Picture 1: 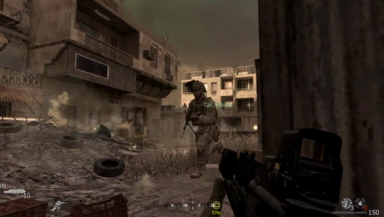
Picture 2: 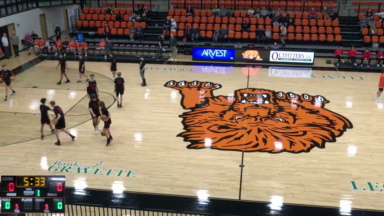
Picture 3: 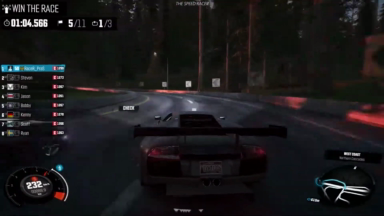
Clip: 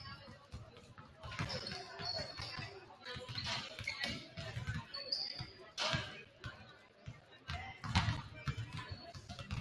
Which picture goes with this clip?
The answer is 2